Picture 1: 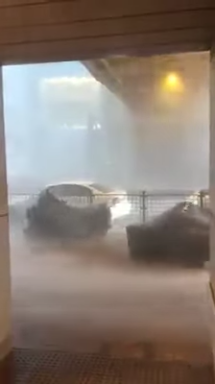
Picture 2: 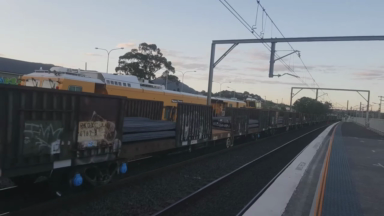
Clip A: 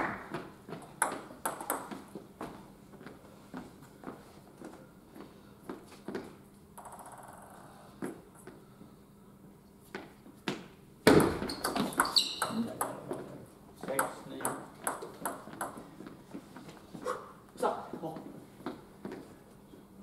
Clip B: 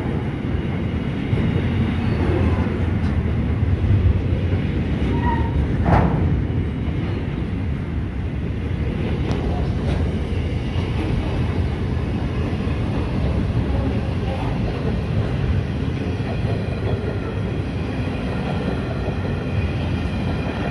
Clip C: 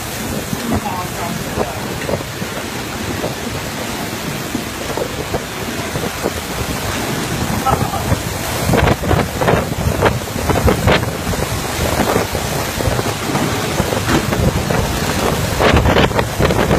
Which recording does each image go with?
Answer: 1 C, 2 B